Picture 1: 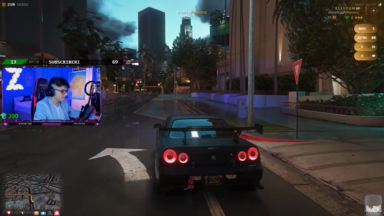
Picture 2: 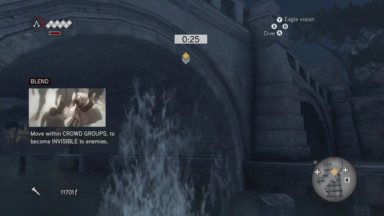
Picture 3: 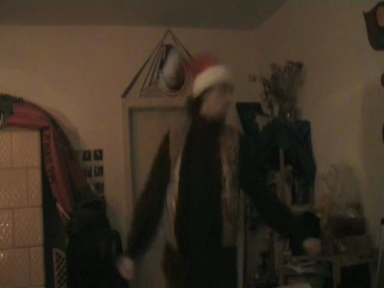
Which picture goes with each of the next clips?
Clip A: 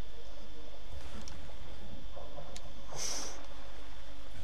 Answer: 2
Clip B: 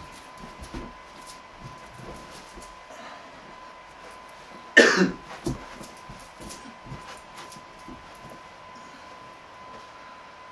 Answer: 3